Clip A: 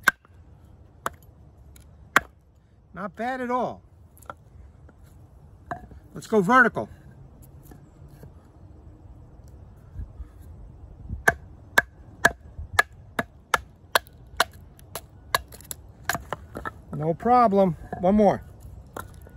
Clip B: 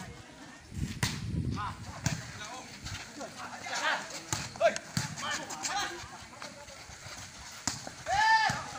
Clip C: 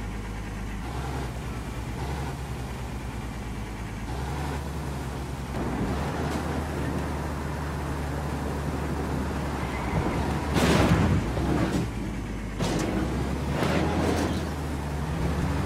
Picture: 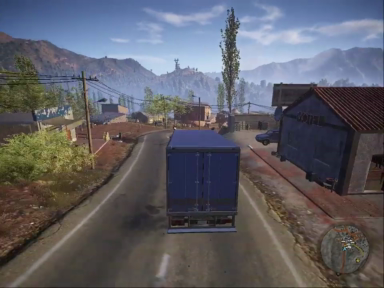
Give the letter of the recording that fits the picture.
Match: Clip C